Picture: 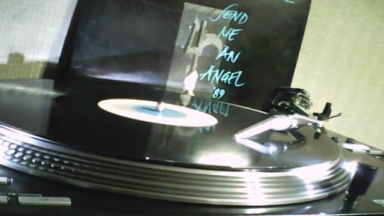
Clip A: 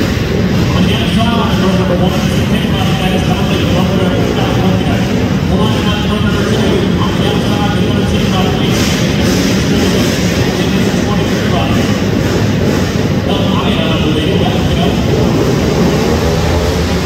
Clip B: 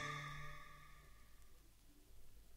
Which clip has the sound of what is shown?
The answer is B